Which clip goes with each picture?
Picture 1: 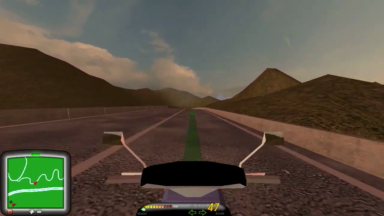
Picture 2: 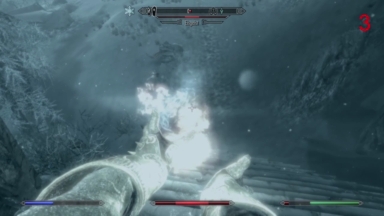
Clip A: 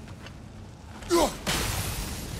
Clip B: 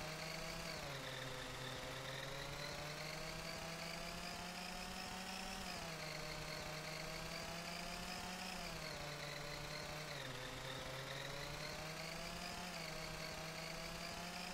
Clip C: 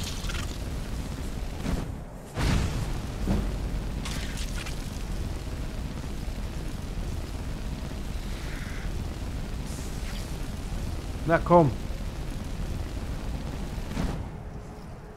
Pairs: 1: B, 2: C